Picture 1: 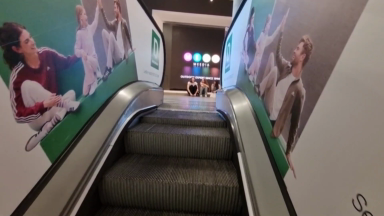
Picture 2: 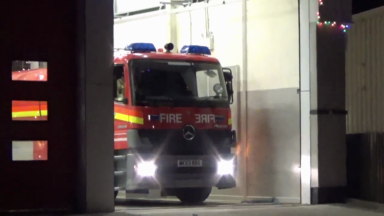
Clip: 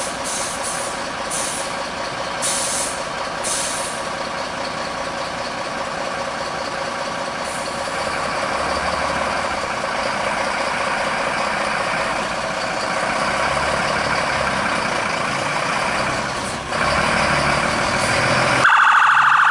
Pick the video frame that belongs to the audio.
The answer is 2